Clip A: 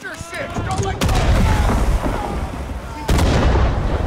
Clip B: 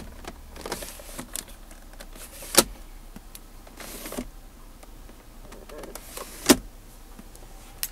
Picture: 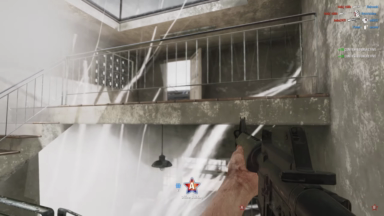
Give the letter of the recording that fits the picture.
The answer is A